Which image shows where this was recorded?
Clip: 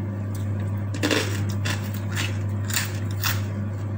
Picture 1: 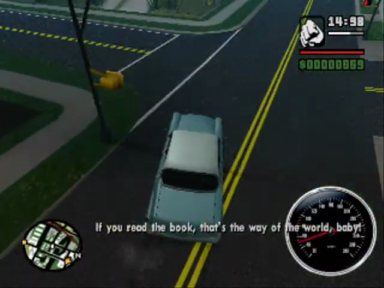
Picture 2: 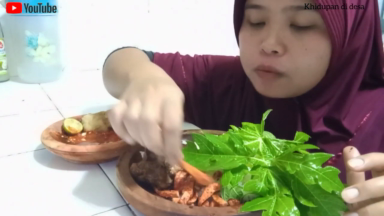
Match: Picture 2